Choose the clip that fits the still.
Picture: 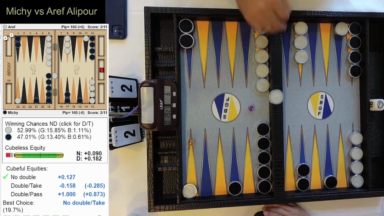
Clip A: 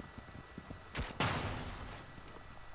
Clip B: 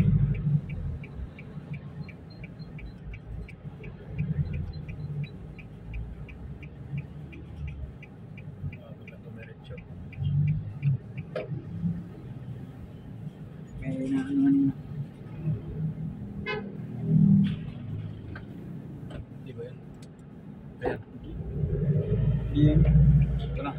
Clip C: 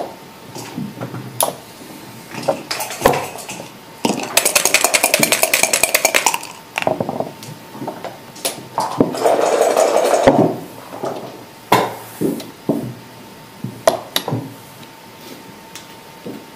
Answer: C